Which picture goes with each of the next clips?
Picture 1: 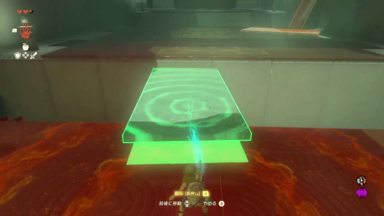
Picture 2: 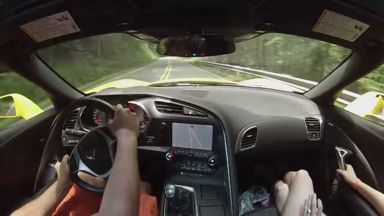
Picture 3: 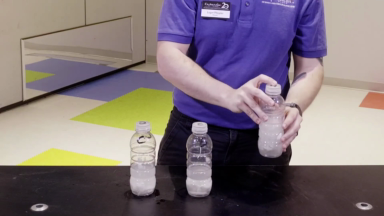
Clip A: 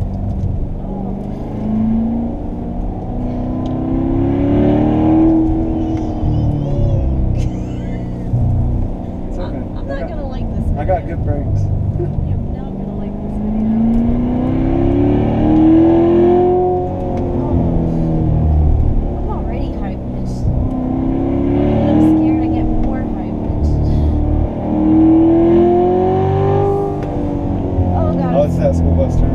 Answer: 2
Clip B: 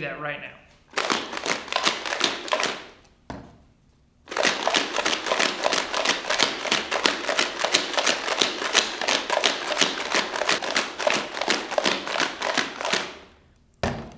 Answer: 3